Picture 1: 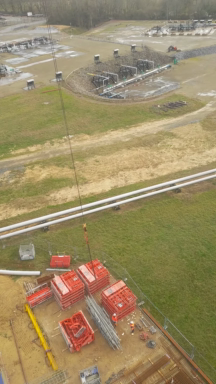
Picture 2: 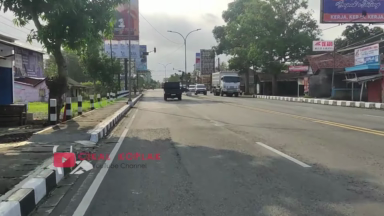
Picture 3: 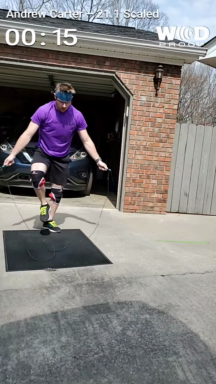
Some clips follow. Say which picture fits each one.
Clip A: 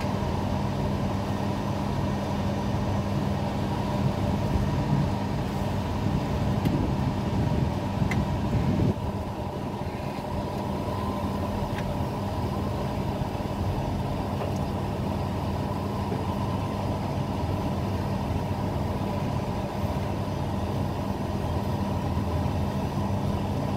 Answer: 1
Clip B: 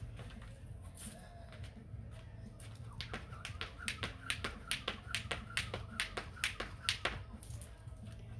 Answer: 3